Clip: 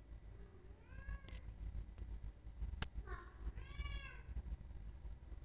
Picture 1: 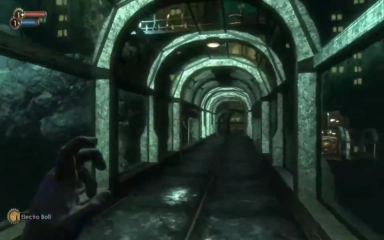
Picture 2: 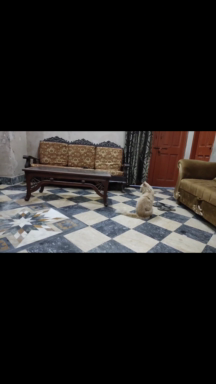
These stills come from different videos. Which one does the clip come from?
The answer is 2